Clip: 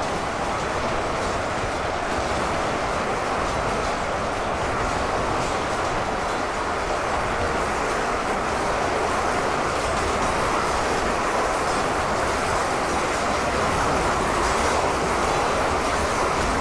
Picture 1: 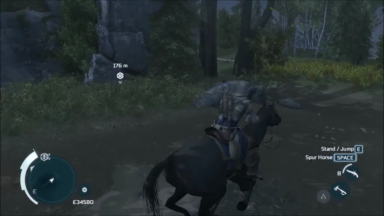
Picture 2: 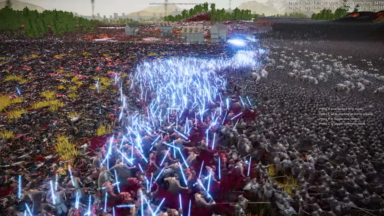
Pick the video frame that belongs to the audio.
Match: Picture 2